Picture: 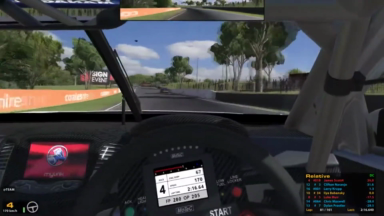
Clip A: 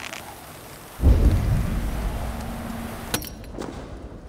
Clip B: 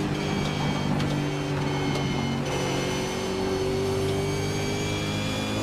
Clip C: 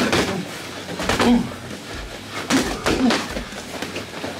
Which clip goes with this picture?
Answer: B